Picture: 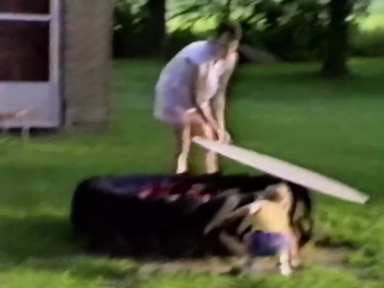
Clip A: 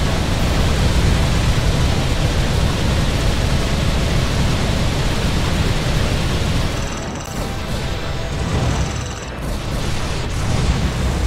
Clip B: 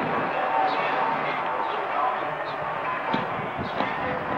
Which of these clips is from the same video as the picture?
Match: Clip B